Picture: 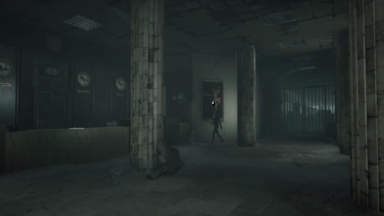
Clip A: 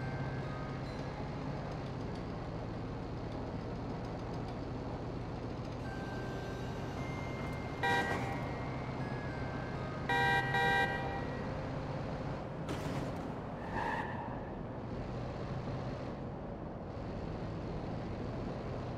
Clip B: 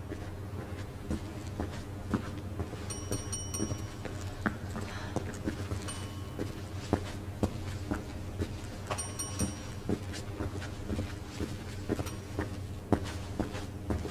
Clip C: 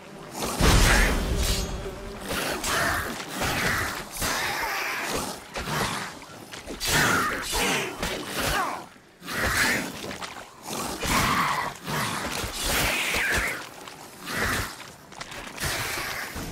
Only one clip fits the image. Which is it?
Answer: B